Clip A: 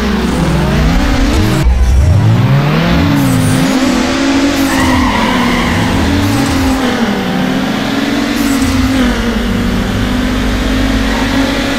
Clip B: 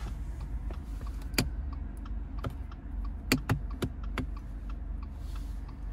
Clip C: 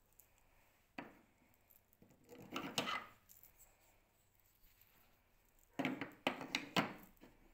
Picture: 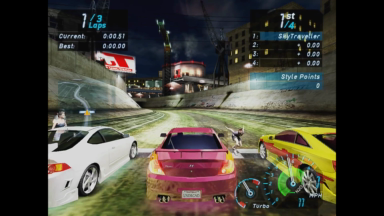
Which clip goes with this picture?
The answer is A